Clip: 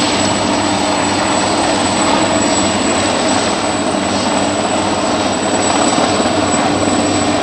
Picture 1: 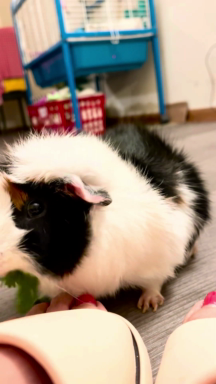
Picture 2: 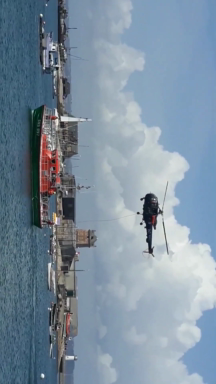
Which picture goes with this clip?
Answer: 2